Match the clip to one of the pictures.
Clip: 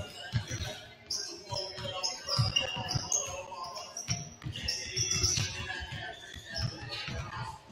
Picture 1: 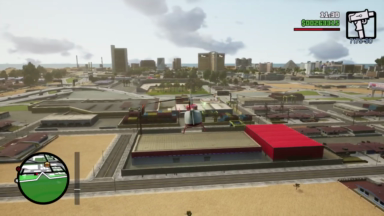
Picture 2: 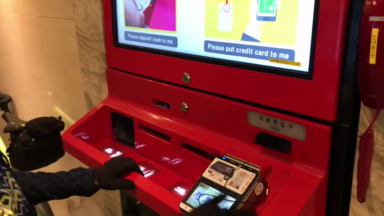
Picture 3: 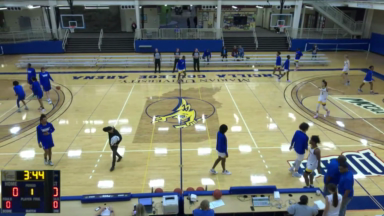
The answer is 3